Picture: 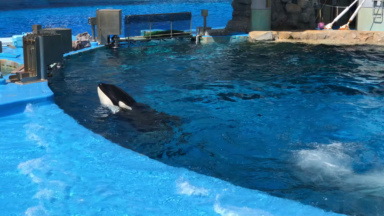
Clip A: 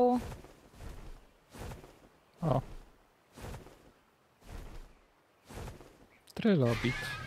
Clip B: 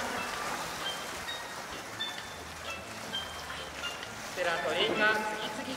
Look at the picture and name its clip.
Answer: B